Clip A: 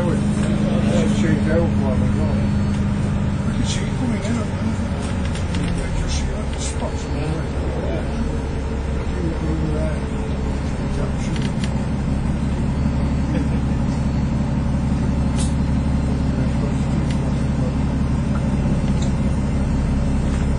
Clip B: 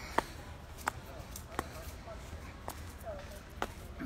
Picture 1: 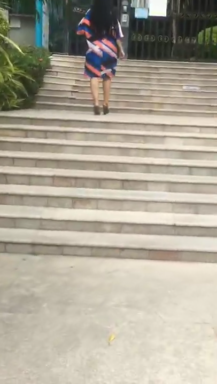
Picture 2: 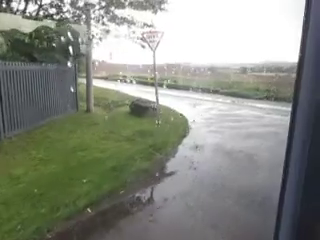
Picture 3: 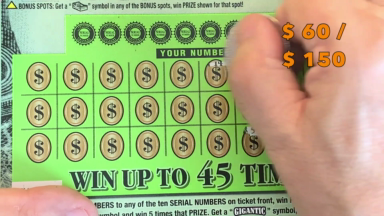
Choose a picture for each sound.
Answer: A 2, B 1